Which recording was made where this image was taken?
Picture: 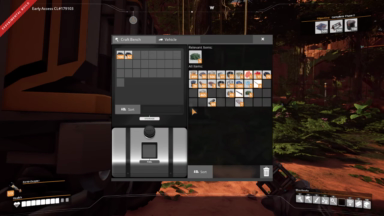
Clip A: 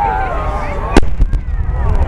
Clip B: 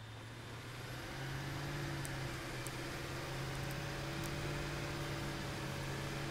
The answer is B